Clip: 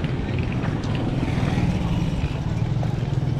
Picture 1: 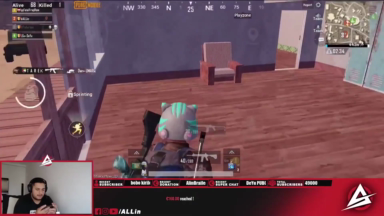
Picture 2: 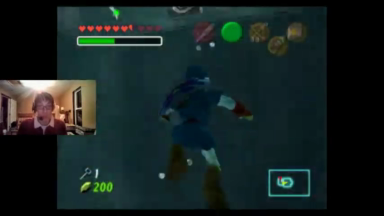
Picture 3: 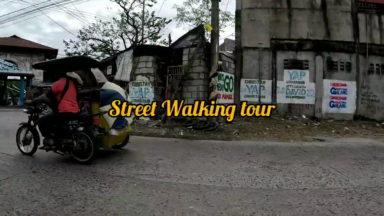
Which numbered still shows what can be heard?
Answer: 3